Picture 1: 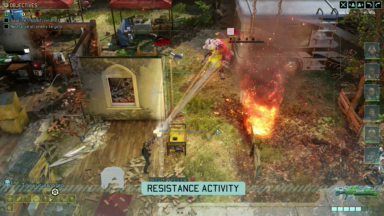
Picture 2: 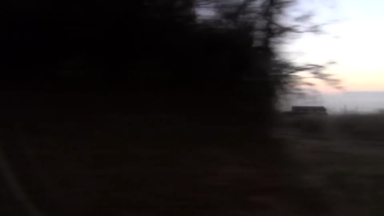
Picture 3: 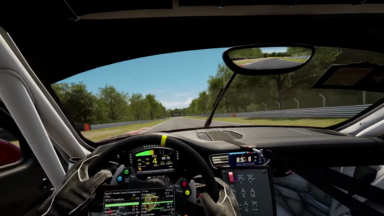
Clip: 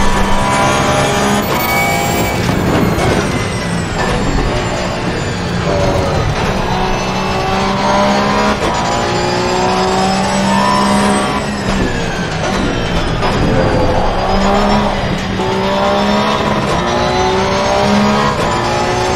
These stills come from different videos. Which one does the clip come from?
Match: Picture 3